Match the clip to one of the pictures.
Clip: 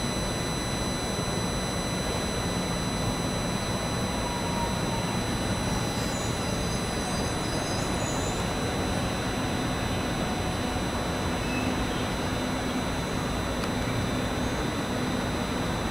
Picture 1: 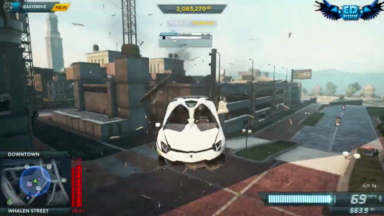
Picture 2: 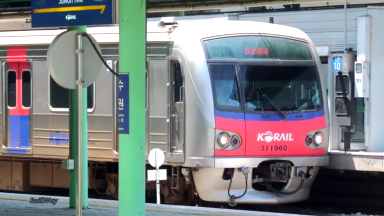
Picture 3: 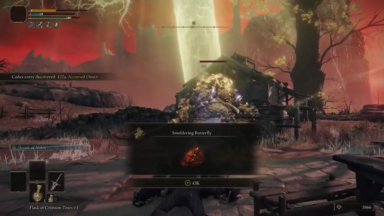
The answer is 2